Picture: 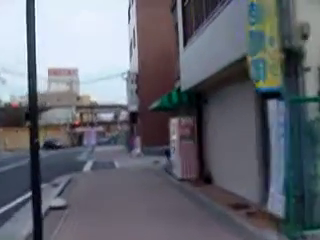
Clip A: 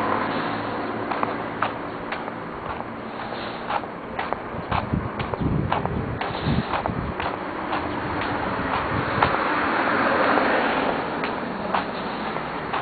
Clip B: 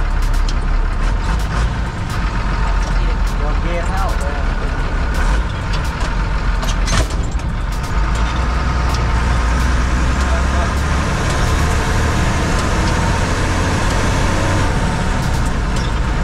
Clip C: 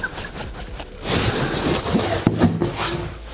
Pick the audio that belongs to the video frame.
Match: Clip A